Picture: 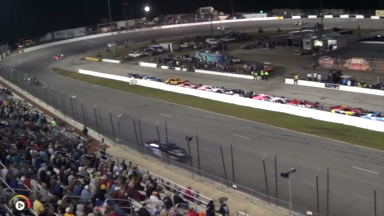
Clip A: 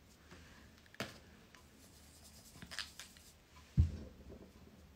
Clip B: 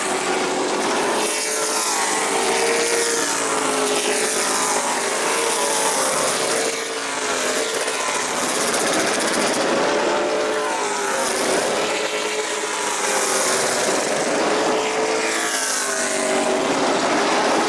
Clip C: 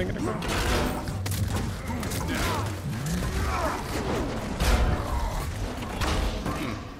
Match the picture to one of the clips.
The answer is B